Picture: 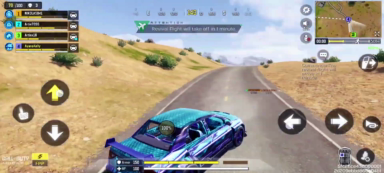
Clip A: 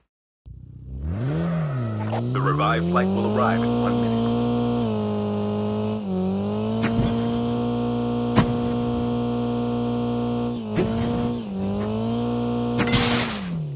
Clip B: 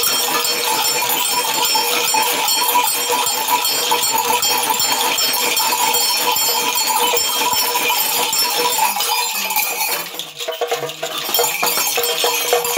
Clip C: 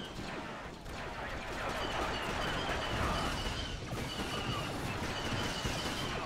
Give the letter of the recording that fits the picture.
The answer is A